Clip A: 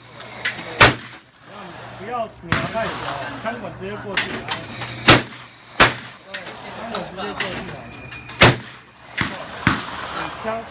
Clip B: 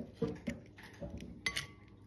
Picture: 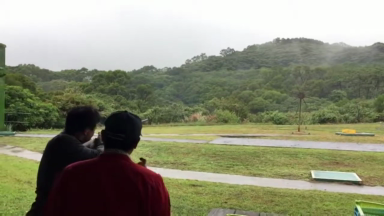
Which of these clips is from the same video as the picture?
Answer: A